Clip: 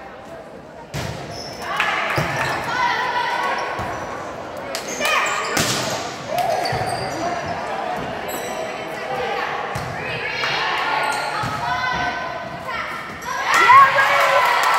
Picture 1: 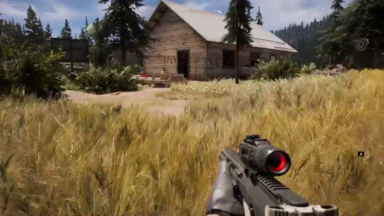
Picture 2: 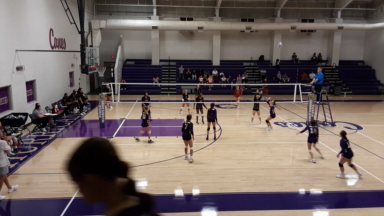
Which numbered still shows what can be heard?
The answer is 2